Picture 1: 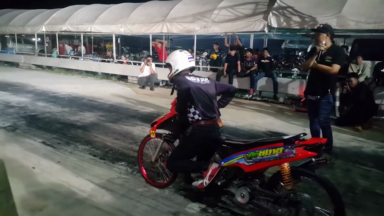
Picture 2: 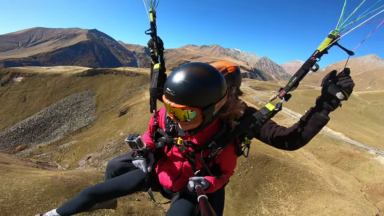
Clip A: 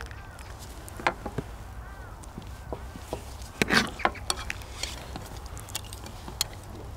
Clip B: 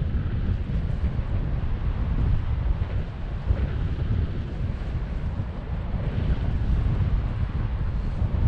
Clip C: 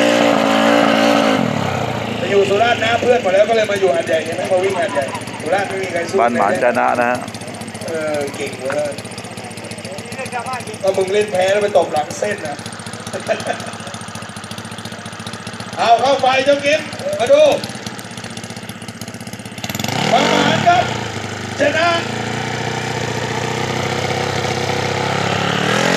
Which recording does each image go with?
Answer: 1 C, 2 B